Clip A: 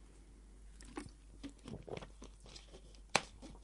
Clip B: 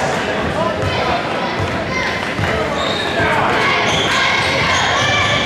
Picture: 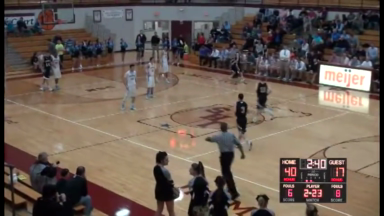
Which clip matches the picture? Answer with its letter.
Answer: B